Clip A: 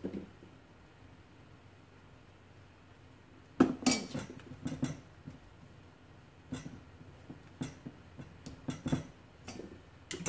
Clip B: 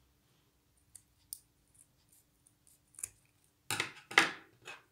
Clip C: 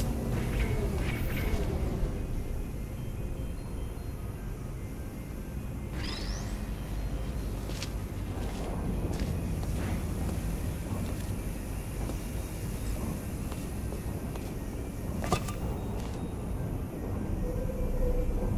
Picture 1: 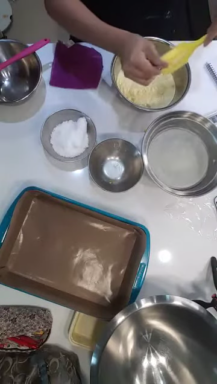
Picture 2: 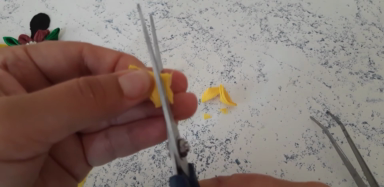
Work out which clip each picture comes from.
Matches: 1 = A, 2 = B